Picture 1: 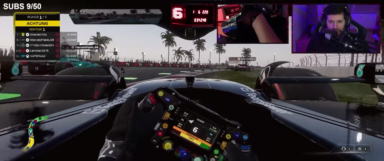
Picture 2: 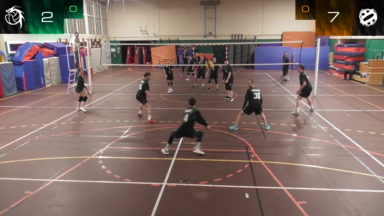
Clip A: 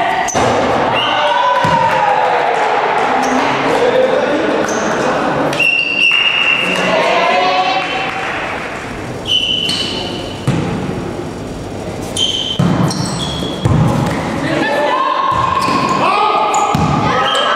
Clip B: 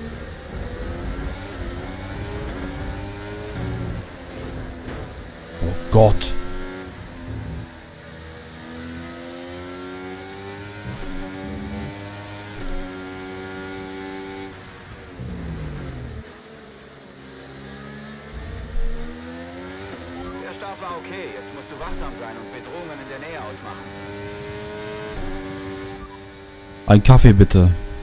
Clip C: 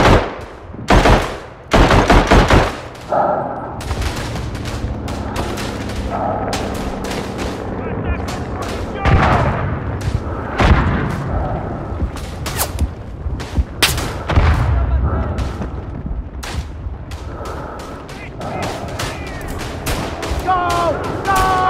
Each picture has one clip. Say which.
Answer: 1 B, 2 A